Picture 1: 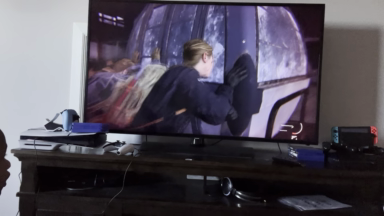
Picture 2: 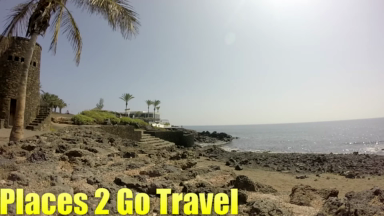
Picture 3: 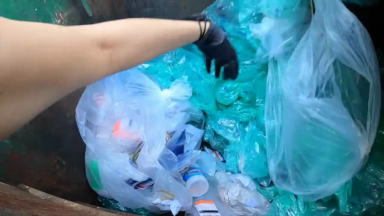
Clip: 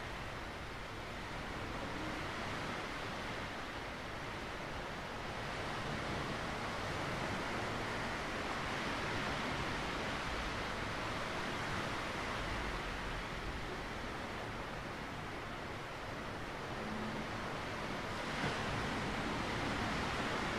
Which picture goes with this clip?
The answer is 2